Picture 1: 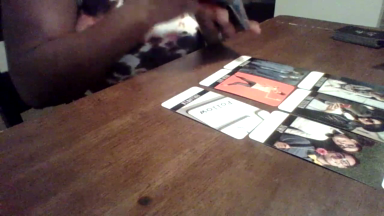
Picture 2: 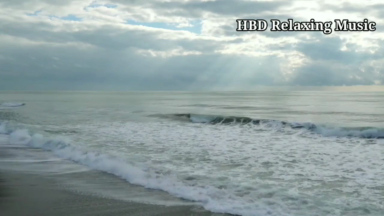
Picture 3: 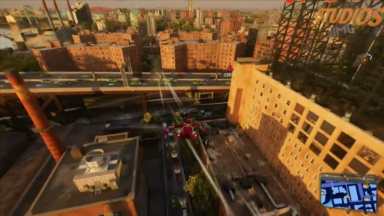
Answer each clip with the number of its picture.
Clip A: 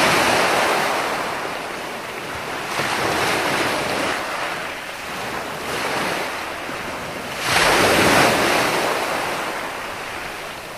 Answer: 2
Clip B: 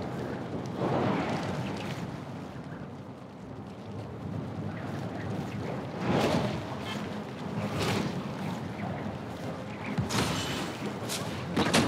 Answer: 3